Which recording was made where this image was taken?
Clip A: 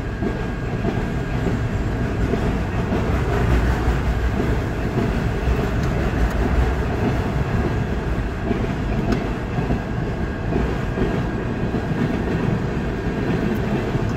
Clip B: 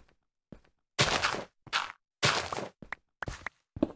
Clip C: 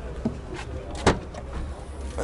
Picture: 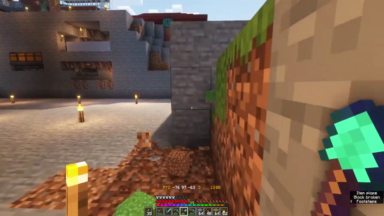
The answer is B